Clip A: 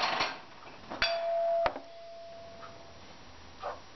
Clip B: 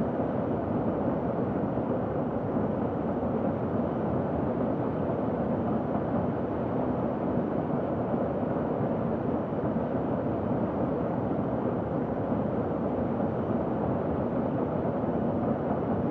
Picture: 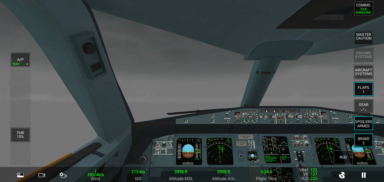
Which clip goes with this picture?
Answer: B